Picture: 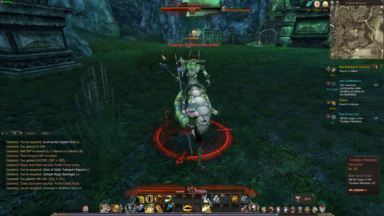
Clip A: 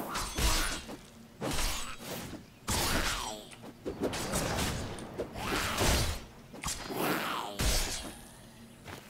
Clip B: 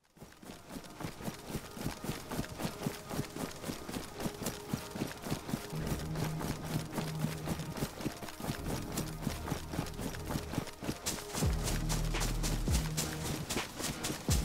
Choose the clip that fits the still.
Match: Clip A